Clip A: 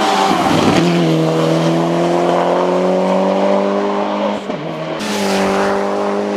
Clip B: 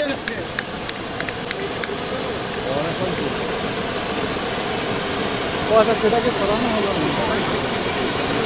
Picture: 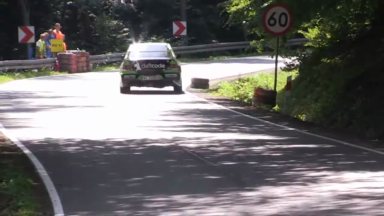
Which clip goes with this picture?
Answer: A